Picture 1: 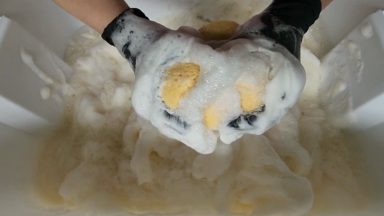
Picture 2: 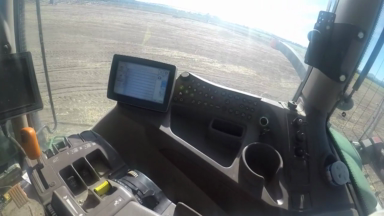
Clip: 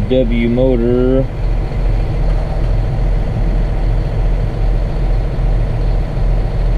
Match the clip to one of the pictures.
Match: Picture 2